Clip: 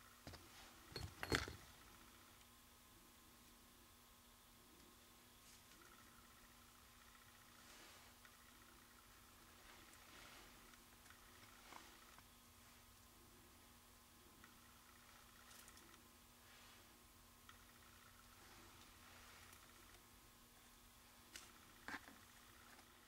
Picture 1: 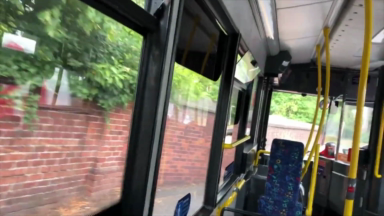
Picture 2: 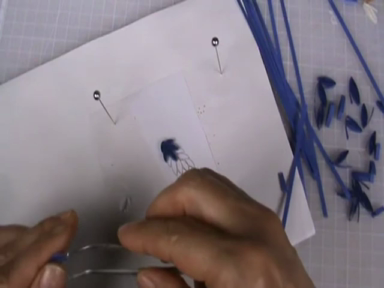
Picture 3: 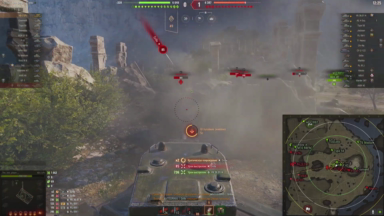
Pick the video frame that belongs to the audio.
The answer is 2